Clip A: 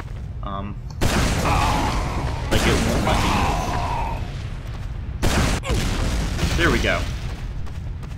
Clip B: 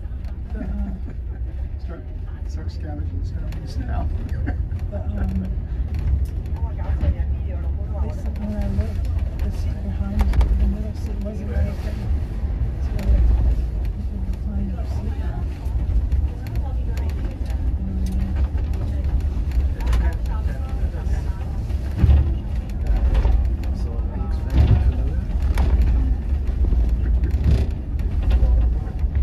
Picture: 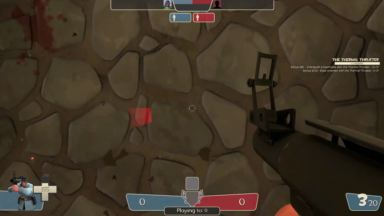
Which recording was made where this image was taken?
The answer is A